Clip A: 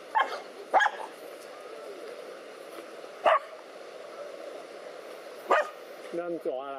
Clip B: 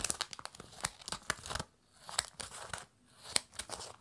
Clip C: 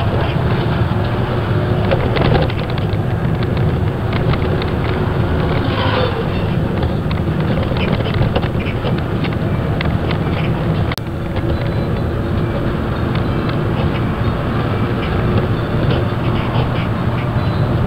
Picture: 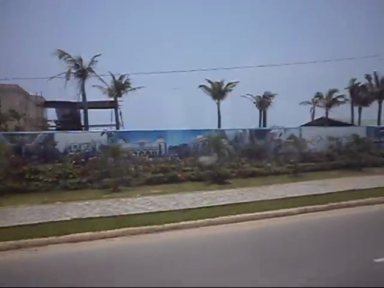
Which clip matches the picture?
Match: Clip C